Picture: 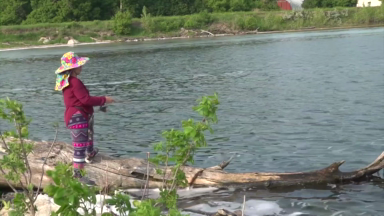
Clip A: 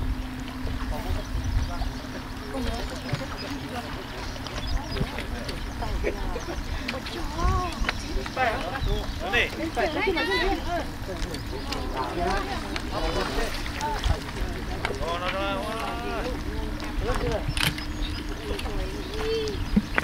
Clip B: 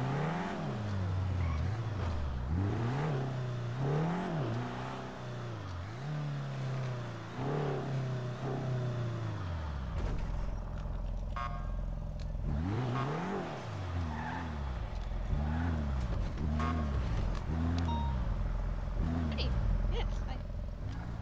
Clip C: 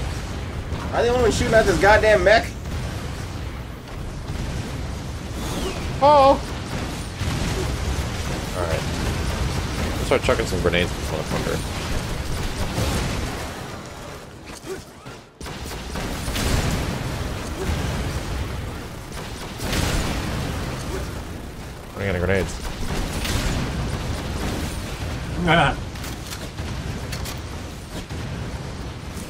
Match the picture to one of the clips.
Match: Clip A